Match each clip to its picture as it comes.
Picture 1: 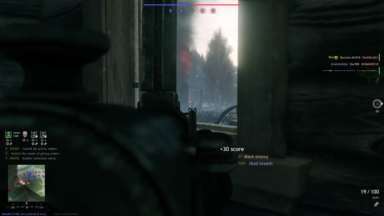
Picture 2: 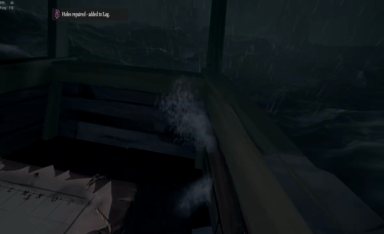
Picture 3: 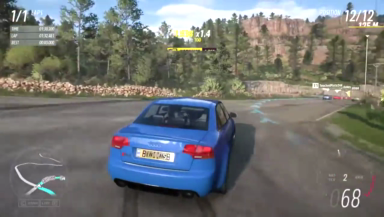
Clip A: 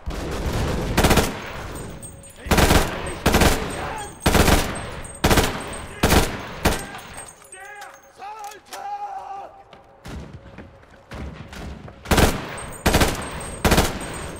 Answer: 1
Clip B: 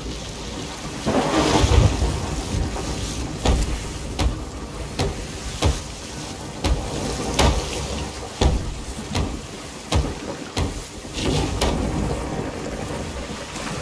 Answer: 2